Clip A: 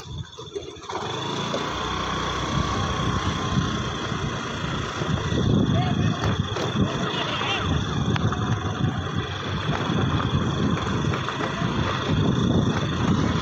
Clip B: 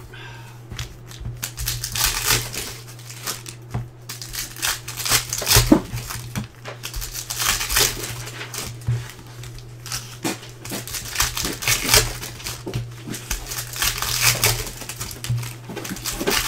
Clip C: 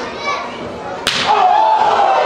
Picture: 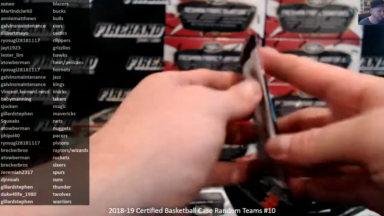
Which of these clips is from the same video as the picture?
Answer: B